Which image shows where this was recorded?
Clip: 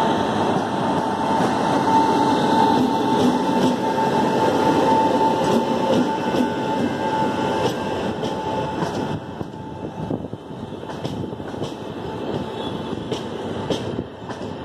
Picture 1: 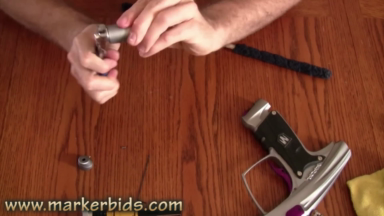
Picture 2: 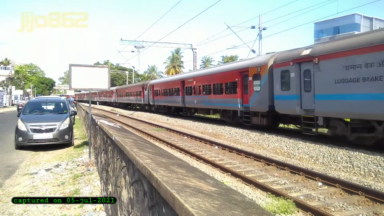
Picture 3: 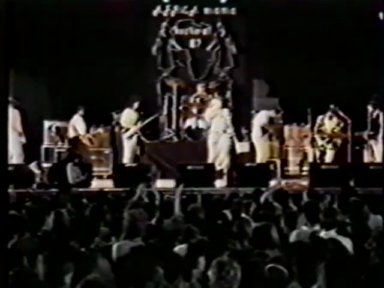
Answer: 2